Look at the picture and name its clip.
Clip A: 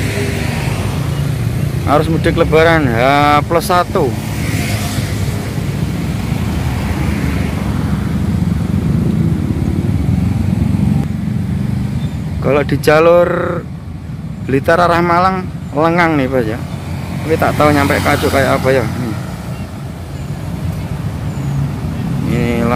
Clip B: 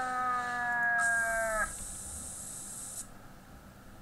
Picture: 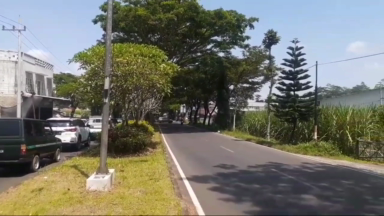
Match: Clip A